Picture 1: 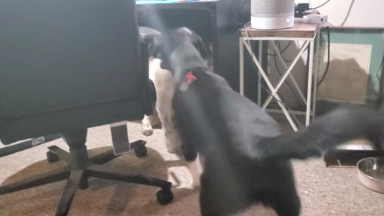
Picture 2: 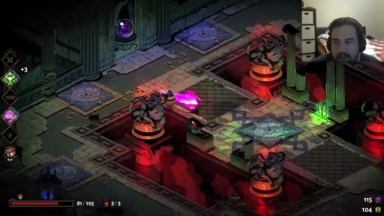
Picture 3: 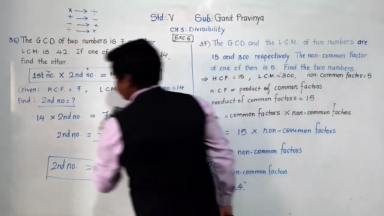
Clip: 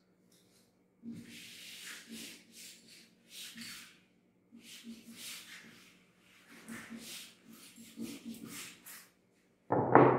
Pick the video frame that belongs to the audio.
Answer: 3